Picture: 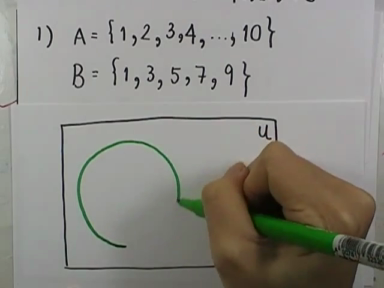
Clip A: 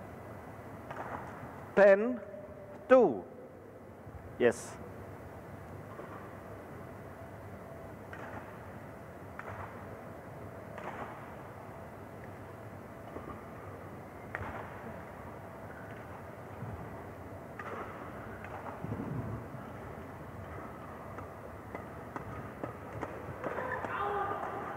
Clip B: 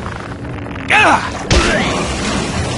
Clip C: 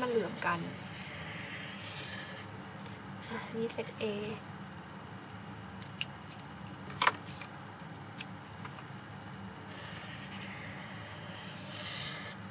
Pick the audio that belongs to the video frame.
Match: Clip C